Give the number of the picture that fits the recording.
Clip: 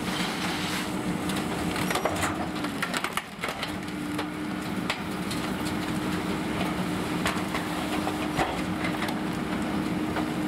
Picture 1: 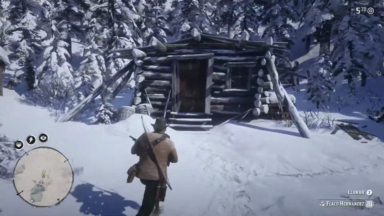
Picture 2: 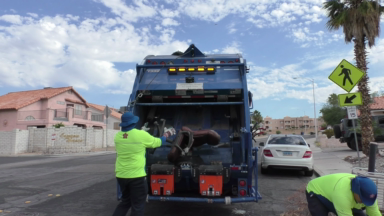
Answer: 2